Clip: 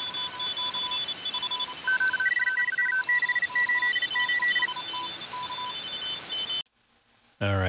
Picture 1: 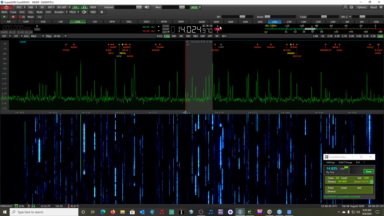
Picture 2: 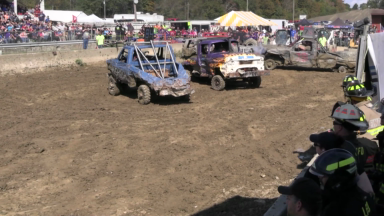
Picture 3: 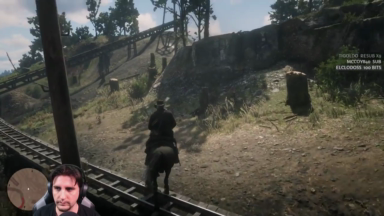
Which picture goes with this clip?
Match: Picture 1